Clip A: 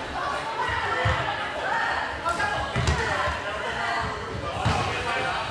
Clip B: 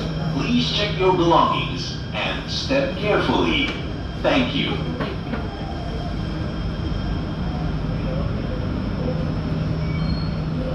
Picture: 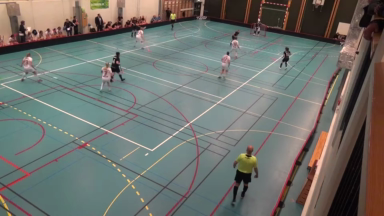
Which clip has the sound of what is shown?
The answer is A